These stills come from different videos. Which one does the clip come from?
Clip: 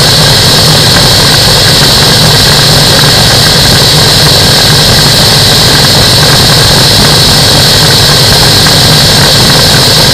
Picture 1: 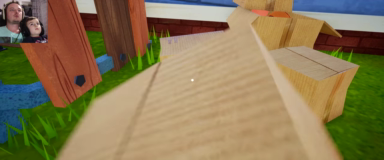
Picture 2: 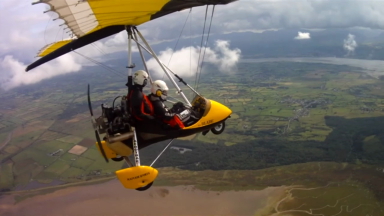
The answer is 2